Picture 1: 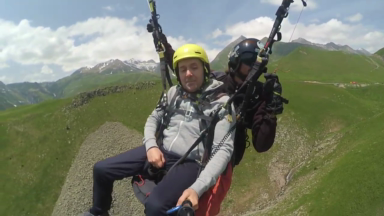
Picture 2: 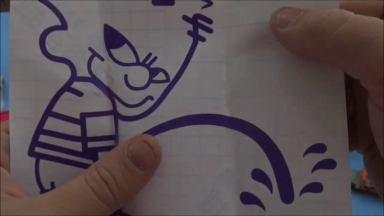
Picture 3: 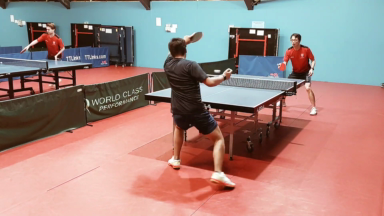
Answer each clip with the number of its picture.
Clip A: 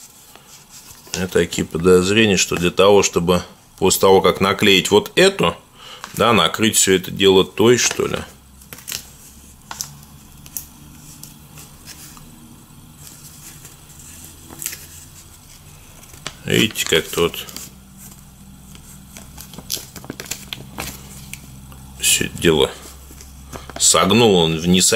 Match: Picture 2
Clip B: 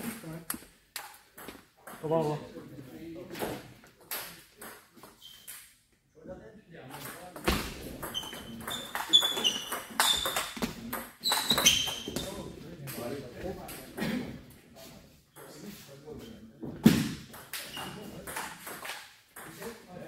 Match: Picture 3